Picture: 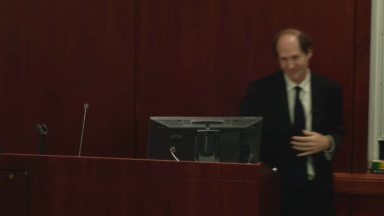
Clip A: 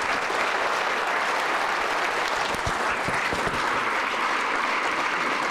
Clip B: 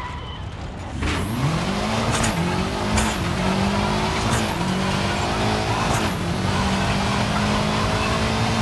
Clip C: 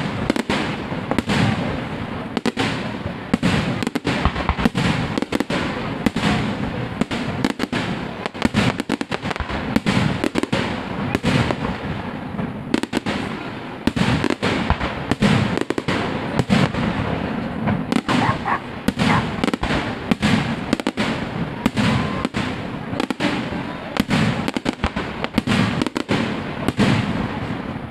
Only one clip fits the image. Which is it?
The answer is A